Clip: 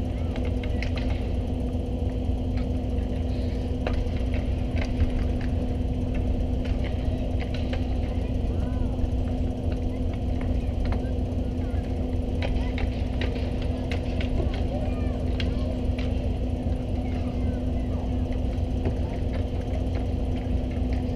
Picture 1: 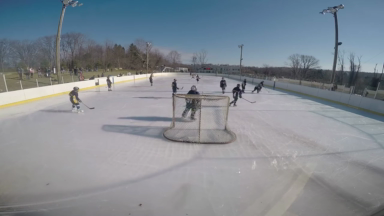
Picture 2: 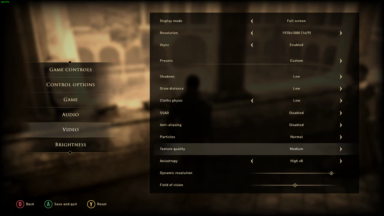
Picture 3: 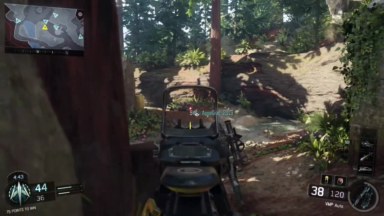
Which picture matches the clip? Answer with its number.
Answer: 1